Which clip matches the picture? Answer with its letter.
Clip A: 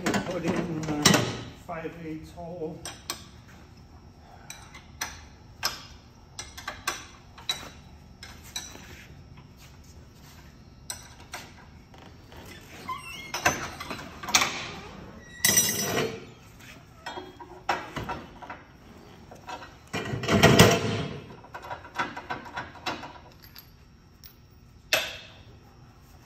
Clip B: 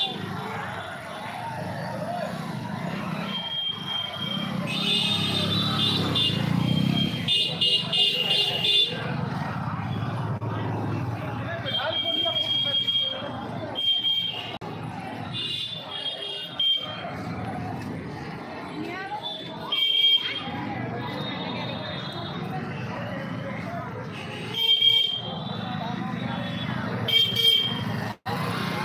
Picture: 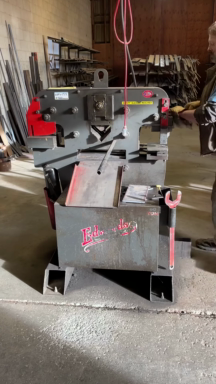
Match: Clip A